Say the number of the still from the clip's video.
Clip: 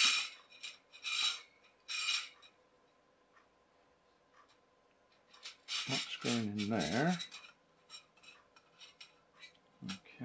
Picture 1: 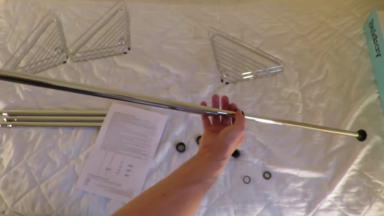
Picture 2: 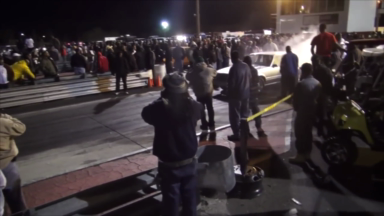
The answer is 1